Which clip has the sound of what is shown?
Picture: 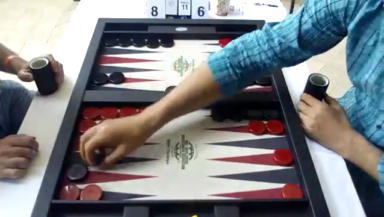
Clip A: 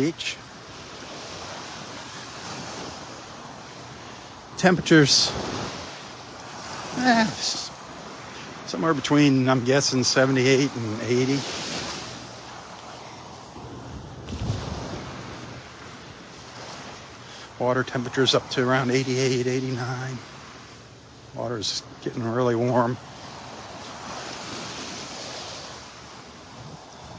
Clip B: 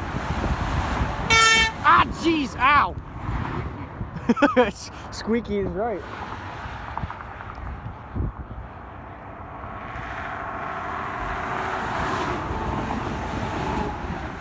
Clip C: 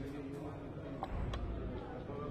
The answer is C